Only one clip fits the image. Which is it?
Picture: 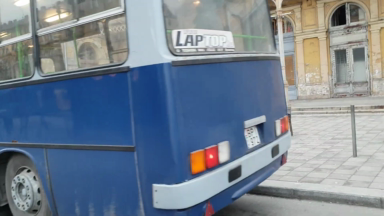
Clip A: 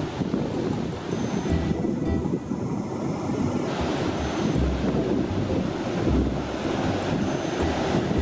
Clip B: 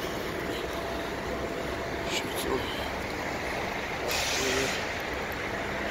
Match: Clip B